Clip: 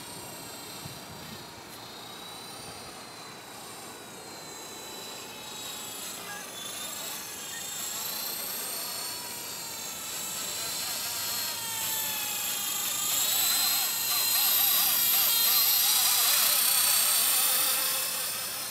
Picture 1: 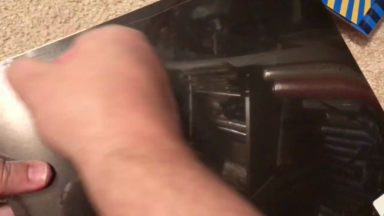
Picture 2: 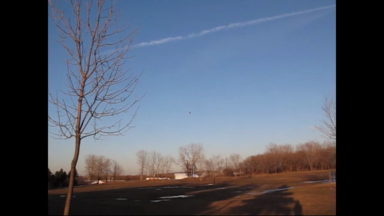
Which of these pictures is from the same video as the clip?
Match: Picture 2